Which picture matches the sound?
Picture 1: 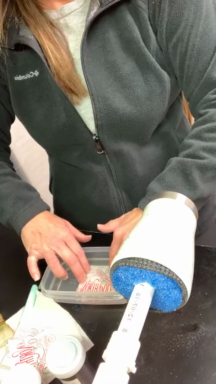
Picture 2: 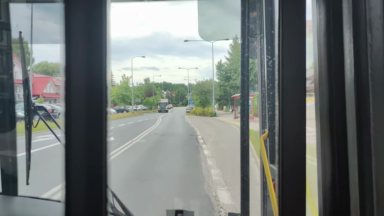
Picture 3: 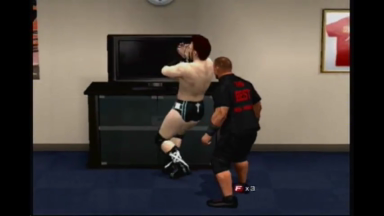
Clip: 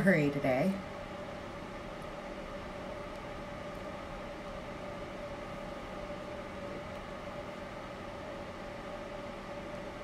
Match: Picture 1